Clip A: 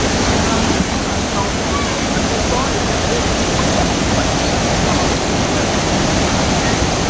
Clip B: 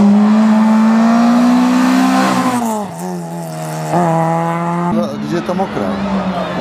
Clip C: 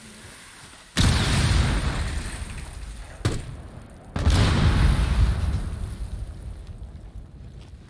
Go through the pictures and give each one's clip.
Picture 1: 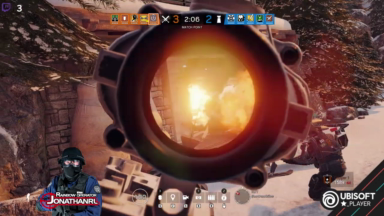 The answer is C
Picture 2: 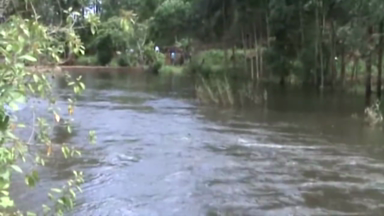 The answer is A